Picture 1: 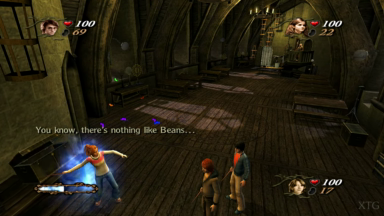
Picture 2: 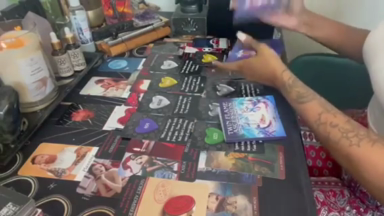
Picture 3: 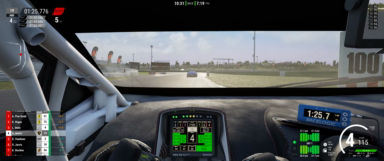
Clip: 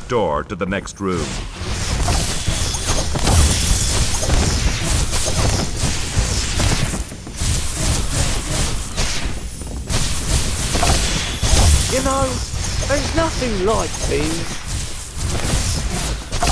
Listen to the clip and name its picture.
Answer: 1